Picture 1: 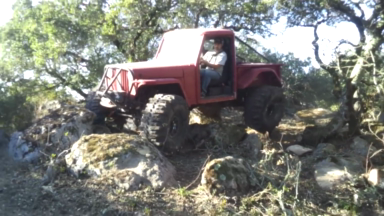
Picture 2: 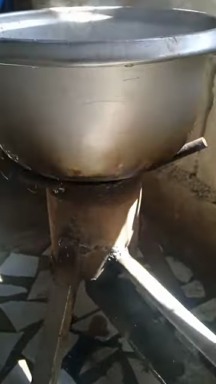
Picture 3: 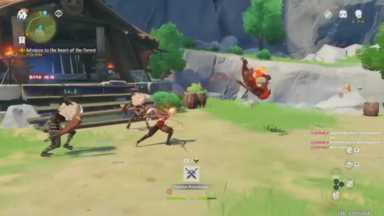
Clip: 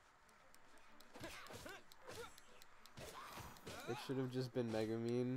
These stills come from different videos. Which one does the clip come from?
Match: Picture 3